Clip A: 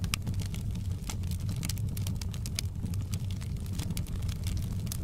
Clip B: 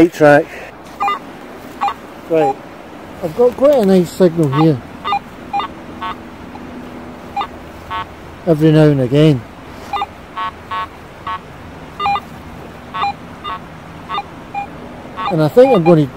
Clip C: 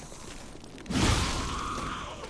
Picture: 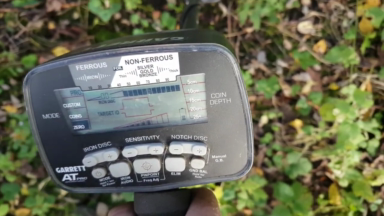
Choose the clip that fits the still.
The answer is B